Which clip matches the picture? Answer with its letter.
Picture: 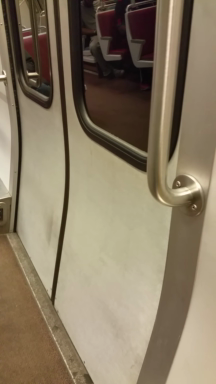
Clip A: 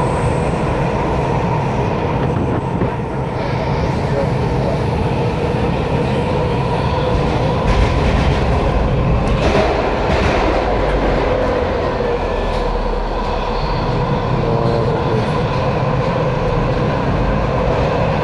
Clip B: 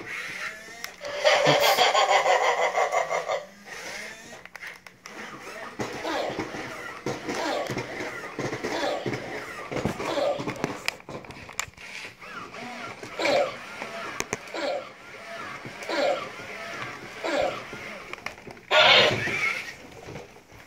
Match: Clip A